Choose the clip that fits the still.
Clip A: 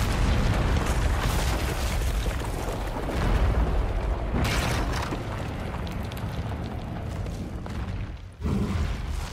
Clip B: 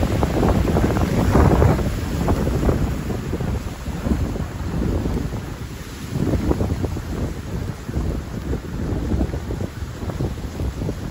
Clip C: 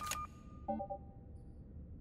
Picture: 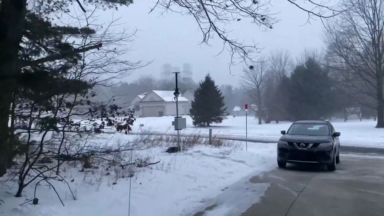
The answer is B